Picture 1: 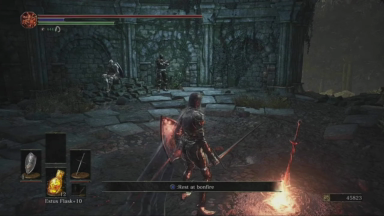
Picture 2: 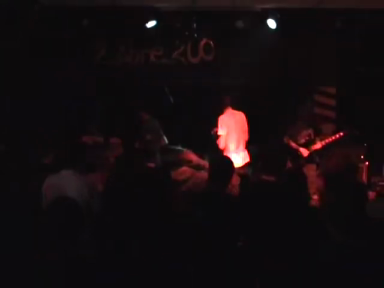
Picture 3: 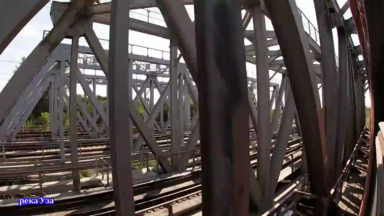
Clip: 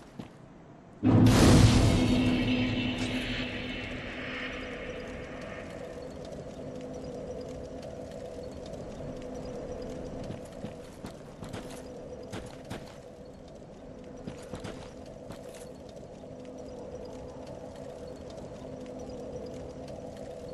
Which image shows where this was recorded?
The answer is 1